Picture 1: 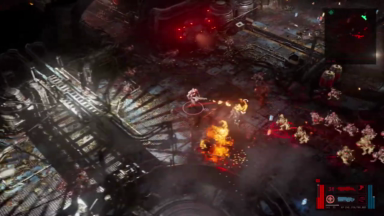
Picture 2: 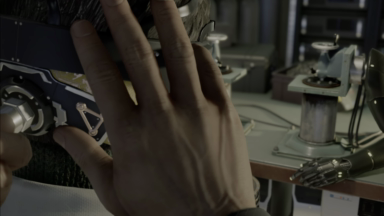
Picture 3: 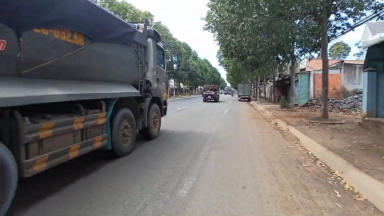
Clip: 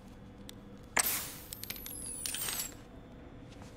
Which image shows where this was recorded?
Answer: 2